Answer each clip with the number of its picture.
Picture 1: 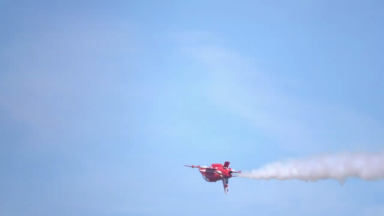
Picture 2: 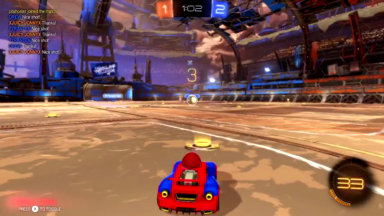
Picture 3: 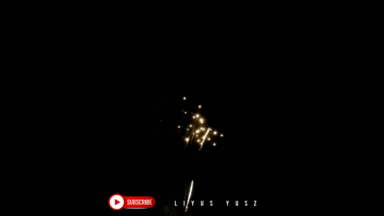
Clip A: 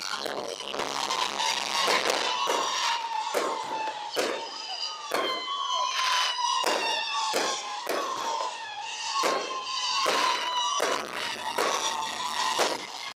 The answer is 3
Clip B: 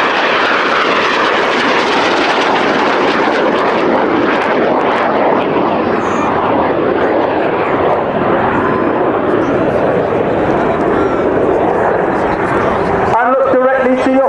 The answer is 1